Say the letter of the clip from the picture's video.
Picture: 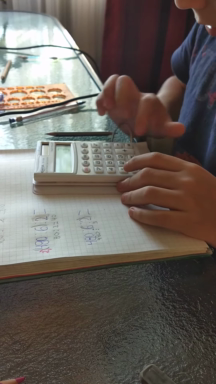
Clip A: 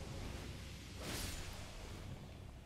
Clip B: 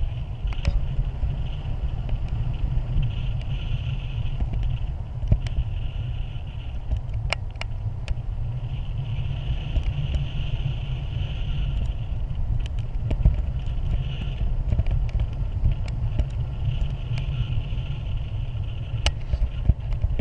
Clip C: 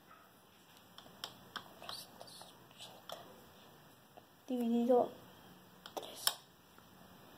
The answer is C